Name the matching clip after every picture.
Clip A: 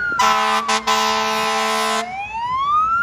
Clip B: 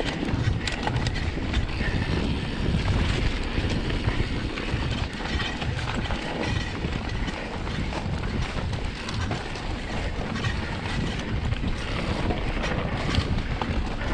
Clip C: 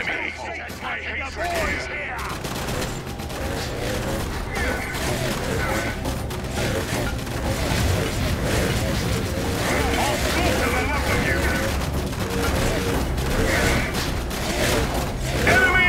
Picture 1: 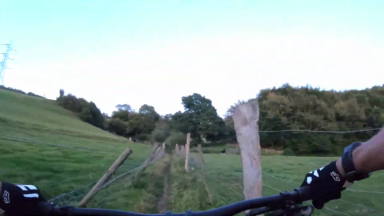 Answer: B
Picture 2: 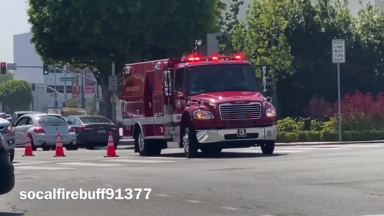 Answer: A